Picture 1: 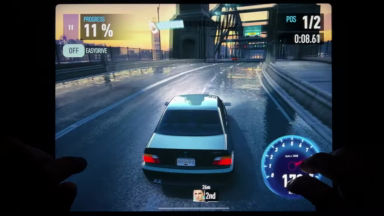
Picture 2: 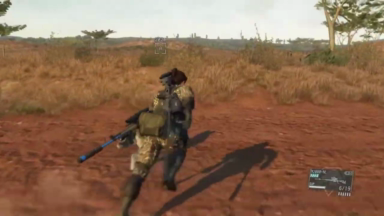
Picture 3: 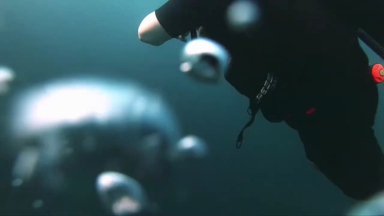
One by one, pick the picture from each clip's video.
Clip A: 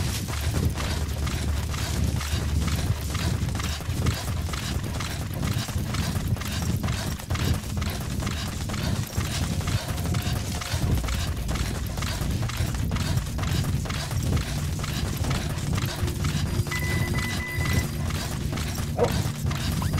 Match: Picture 2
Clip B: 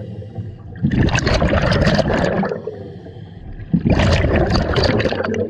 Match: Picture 3